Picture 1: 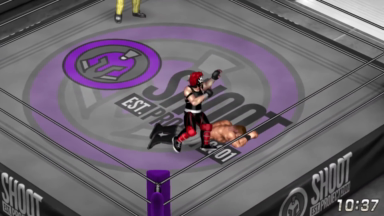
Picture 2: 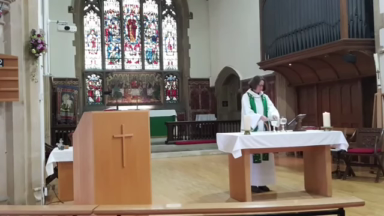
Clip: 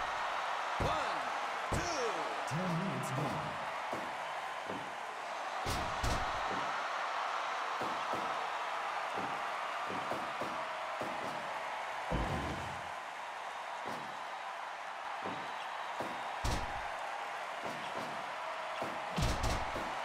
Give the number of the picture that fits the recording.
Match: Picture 1